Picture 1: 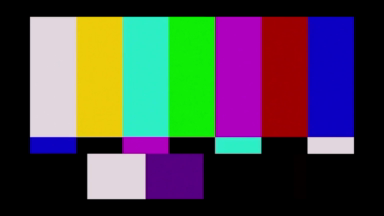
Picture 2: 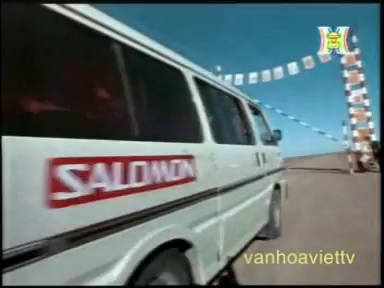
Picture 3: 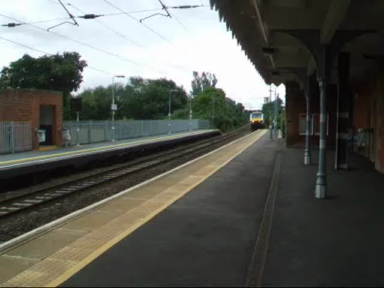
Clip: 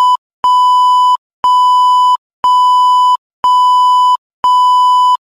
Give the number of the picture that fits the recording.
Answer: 1